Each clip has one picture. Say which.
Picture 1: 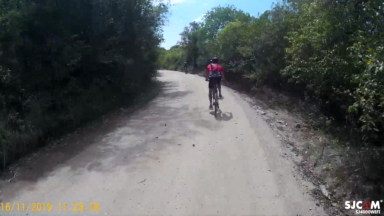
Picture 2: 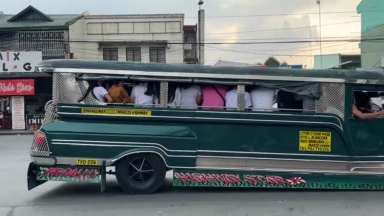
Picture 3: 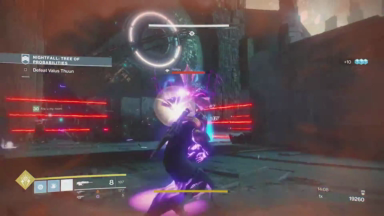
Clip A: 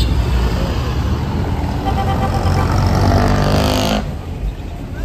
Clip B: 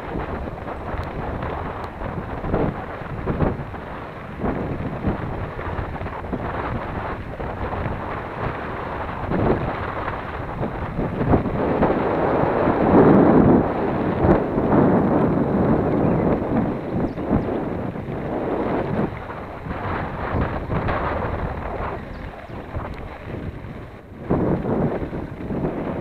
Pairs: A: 2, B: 1